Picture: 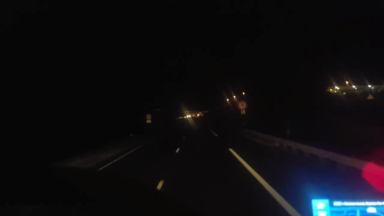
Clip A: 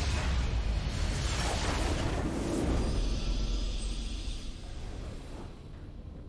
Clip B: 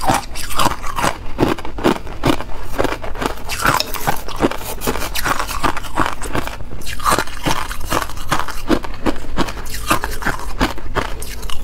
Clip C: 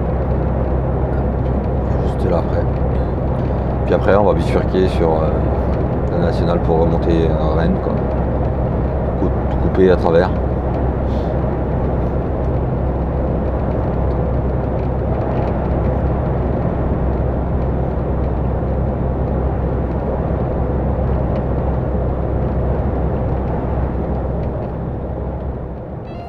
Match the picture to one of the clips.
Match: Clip C